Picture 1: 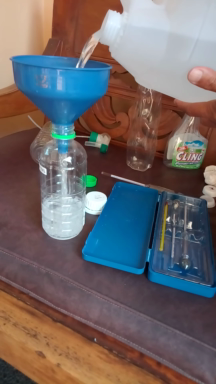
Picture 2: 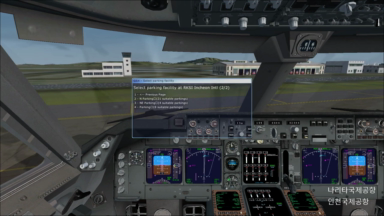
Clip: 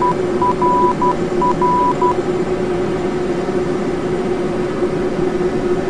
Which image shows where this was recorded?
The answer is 2